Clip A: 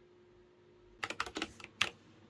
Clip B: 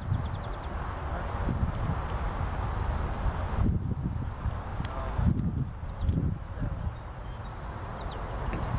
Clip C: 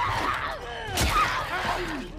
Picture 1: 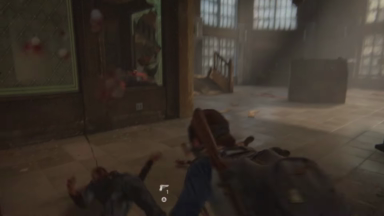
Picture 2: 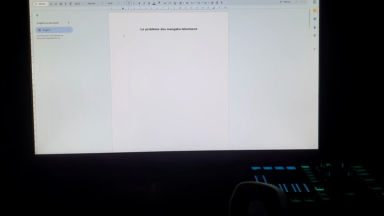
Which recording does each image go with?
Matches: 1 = C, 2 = A